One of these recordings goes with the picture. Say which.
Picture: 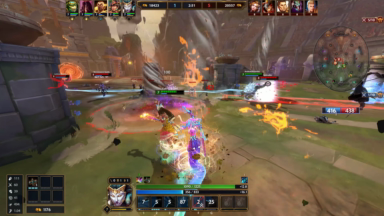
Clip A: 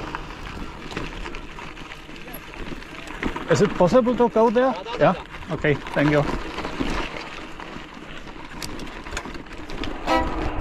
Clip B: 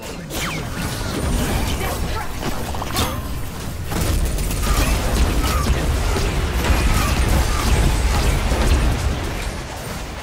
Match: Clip B